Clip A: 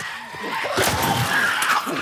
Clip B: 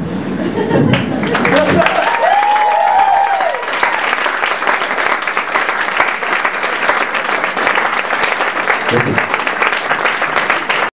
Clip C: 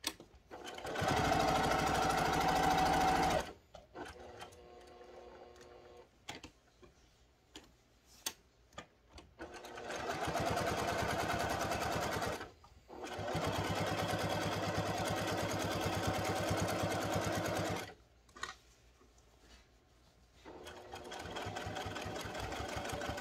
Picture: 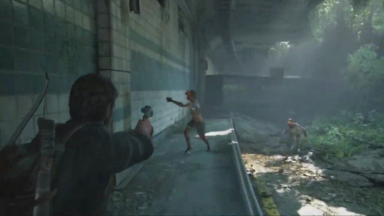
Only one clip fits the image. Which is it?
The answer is A